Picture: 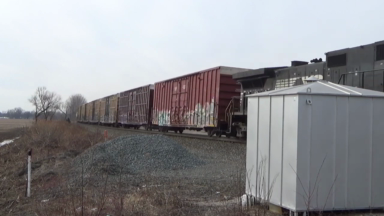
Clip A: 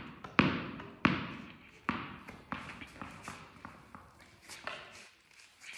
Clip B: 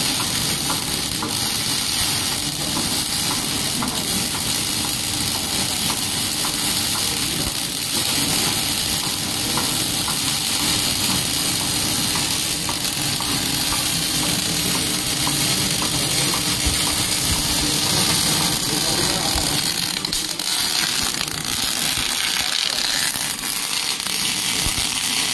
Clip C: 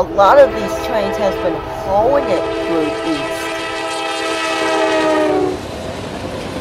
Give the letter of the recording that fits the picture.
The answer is C